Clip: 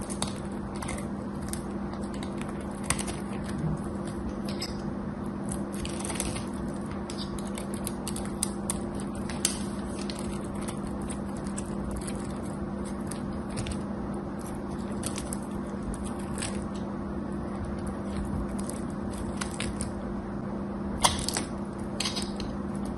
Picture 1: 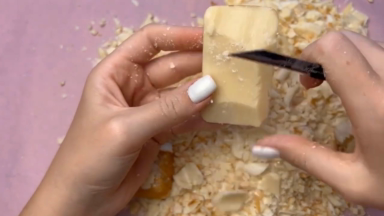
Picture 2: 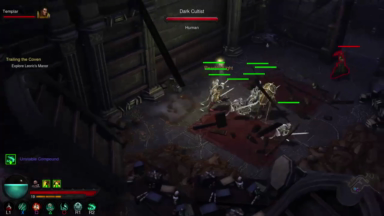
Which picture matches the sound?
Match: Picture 1